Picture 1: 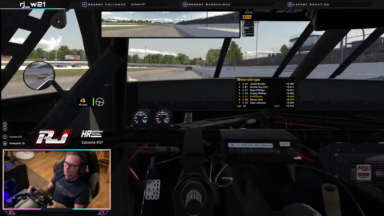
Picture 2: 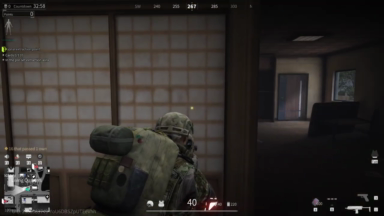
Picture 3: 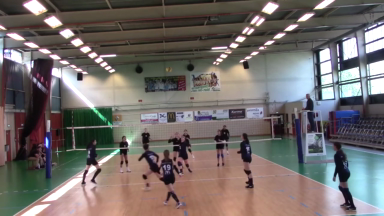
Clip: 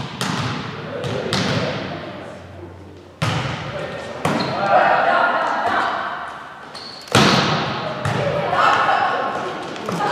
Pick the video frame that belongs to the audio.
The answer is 3